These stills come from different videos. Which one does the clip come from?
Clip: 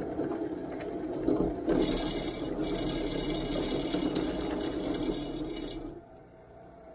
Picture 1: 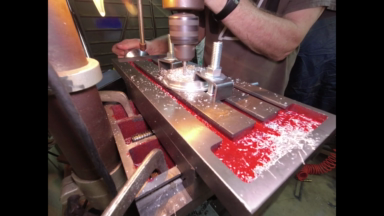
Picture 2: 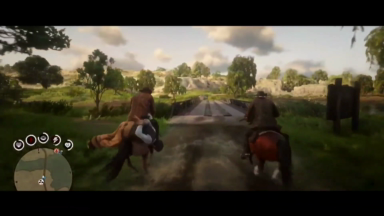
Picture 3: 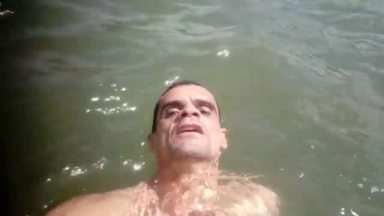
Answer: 1